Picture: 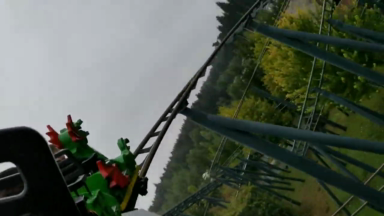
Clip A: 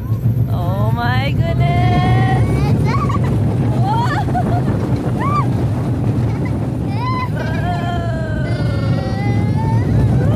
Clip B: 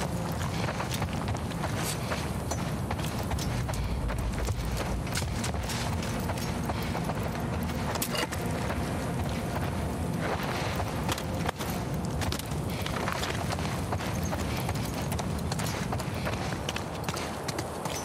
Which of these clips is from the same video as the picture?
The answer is A